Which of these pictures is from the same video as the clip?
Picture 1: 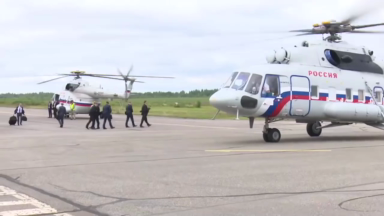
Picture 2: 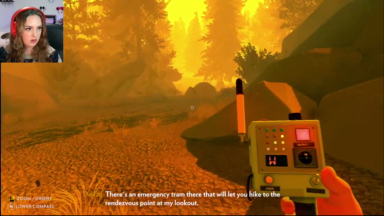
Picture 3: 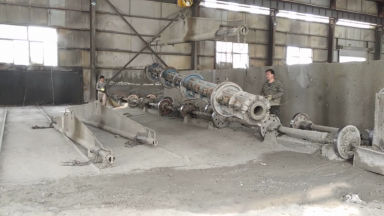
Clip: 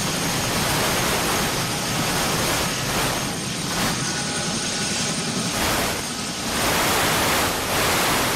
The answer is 1